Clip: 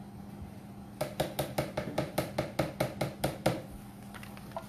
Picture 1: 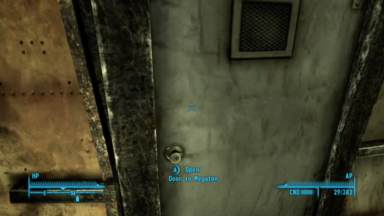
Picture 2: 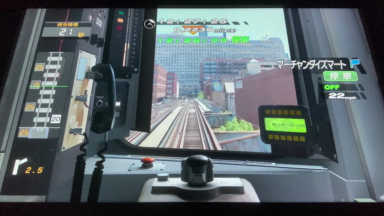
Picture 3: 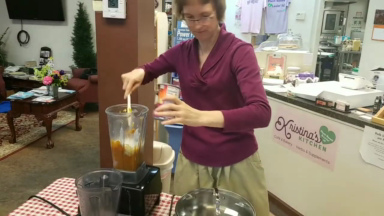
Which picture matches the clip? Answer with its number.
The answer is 3